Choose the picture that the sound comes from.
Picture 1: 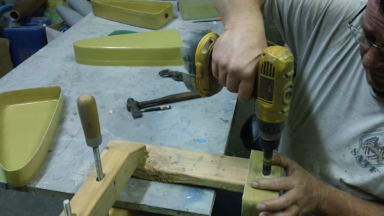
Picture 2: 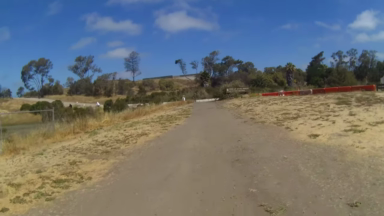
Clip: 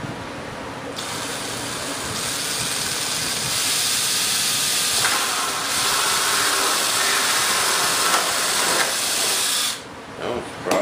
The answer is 1